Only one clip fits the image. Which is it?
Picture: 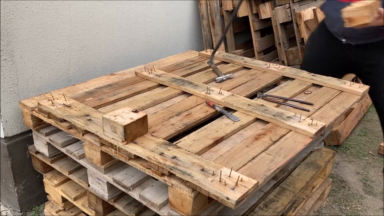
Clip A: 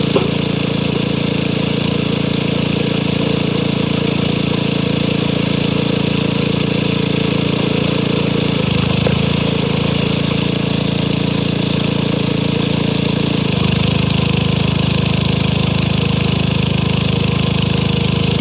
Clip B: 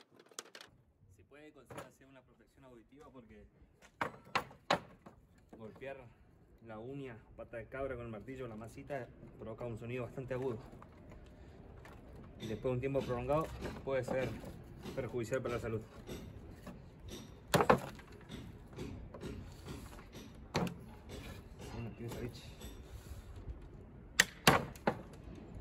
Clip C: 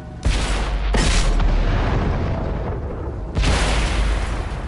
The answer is B